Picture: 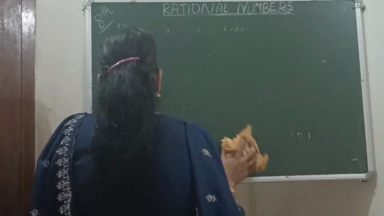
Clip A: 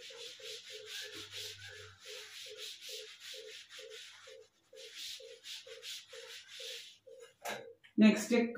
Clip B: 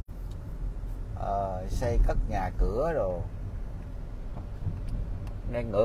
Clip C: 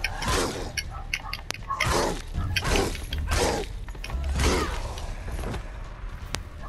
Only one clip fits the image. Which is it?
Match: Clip A